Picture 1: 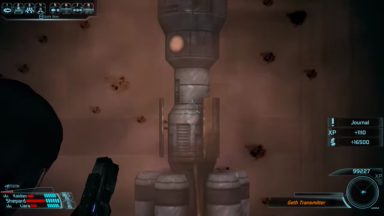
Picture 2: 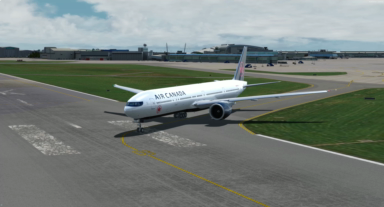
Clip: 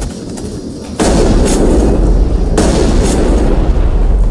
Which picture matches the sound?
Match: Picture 1